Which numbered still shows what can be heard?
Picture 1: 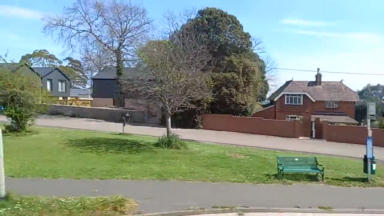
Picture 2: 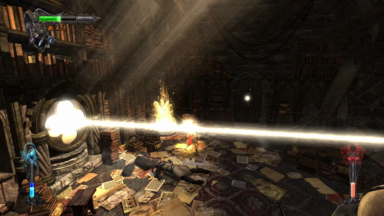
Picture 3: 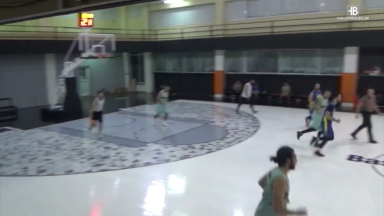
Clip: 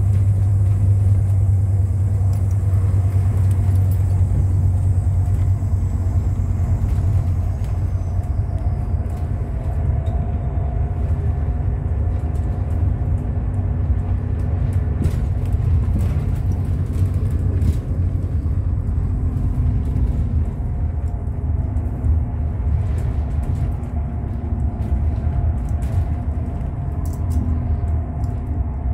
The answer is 1